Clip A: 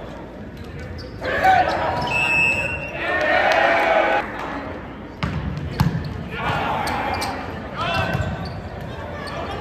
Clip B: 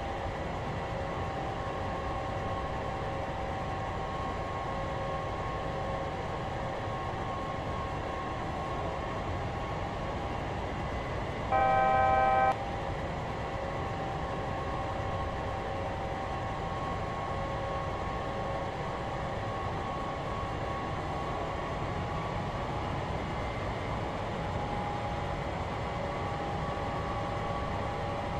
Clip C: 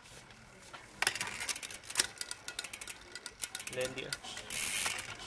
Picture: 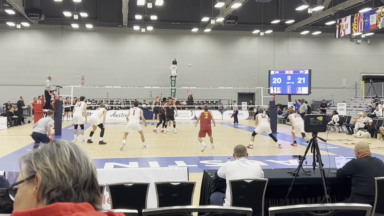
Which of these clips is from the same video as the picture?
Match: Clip A